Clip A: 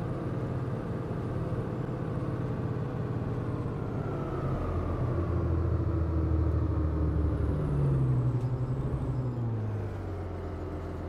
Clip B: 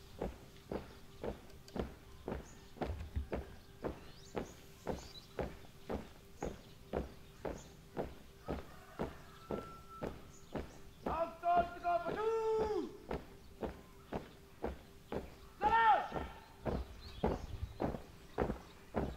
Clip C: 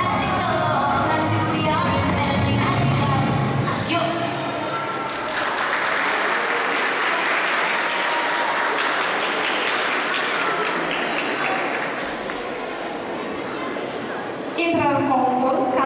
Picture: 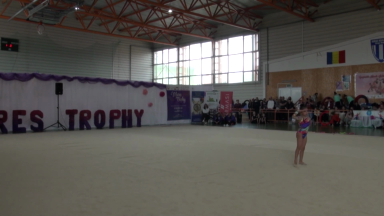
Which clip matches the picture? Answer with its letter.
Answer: C